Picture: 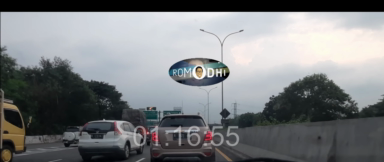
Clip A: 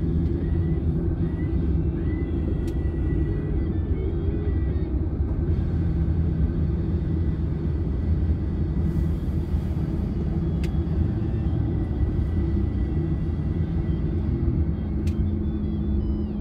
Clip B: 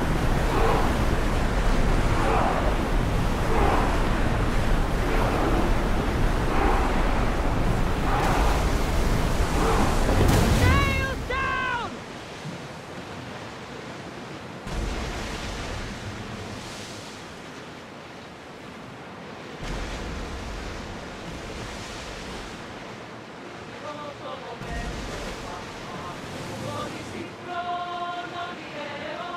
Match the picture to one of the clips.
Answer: A